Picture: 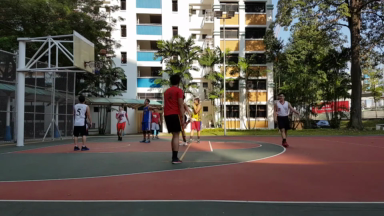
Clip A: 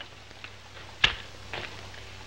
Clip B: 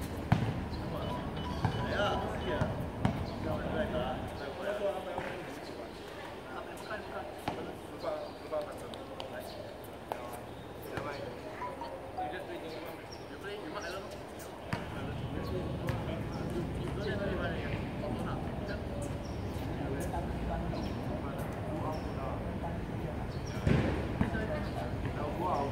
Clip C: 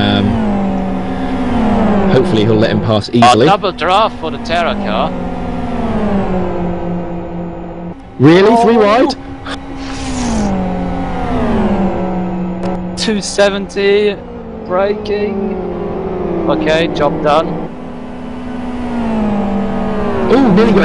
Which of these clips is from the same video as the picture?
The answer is B